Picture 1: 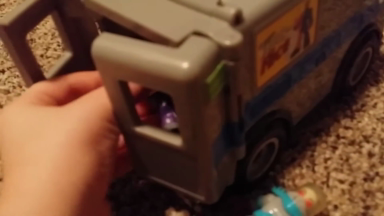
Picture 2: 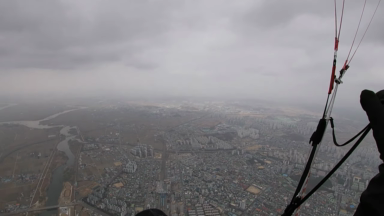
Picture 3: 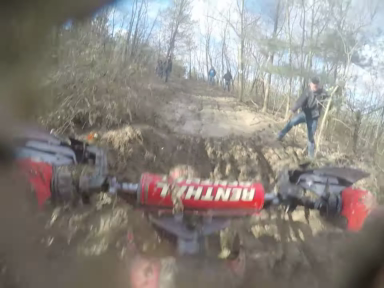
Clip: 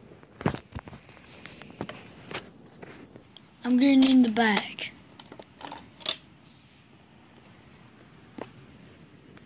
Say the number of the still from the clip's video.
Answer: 1